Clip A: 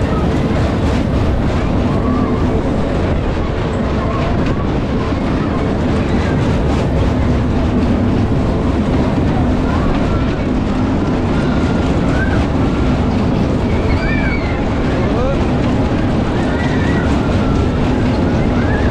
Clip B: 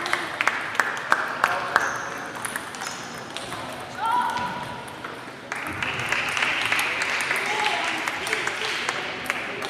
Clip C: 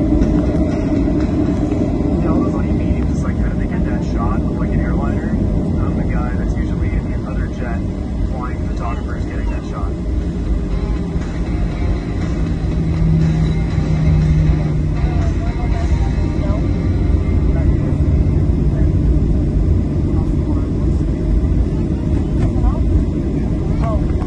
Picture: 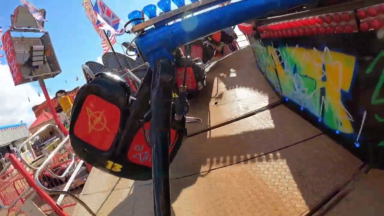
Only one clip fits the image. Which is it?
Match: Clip A